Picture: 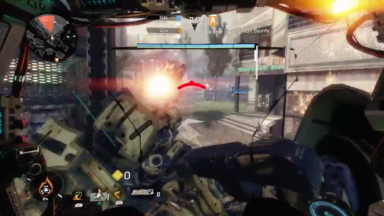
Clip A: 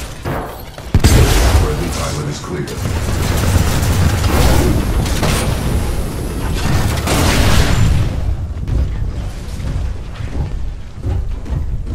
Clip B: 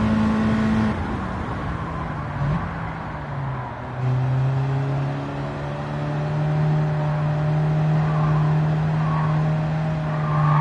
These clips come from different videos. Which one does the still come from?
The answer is A